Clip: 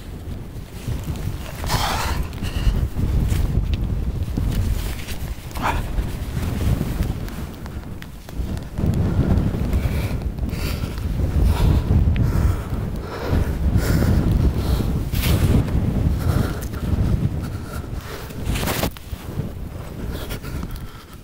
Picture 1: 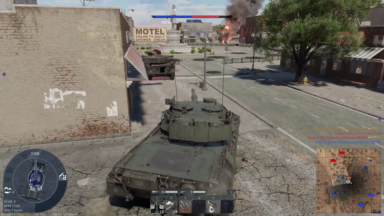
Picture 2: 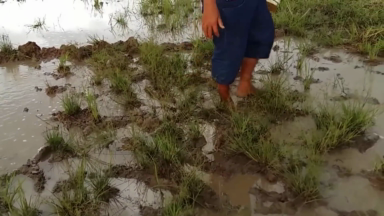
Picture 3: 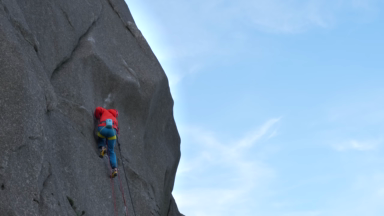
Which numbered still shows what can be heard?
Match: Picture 3